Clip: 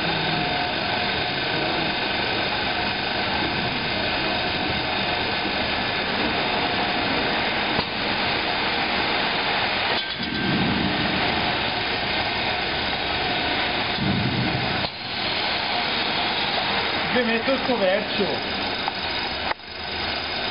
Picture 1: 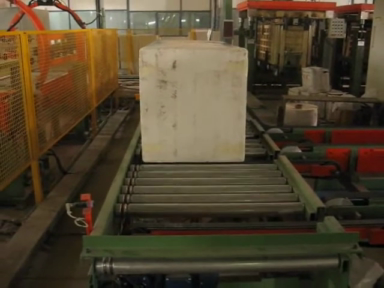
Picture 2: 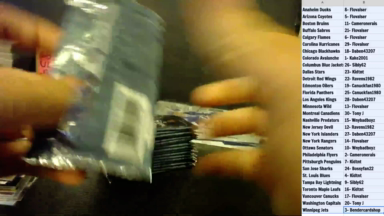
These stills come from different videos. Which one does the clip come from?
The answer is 1